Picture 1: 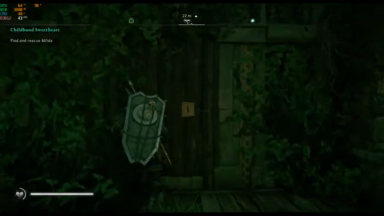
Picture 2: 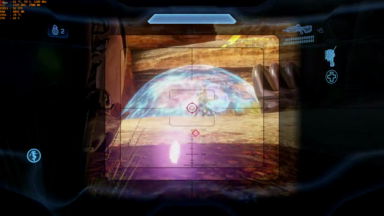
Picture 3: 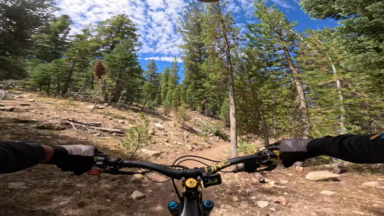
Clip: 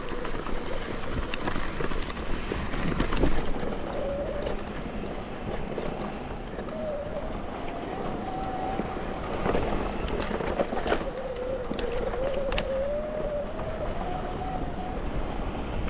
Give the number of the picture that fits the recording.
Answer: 3